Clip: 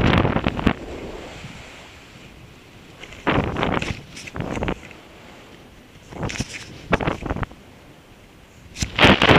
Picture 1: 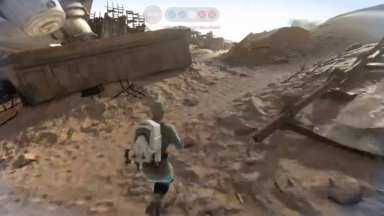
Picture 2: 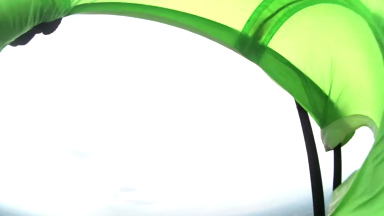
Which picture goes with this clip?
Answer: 2